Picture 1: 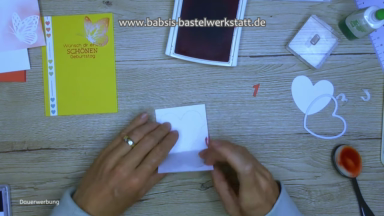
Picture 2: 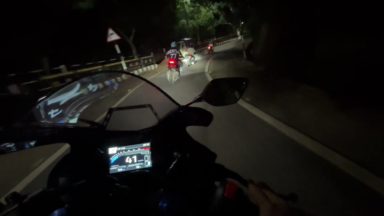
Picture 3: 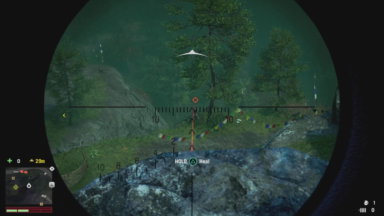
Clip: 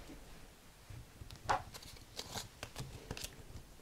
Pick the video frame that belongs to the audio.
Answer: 1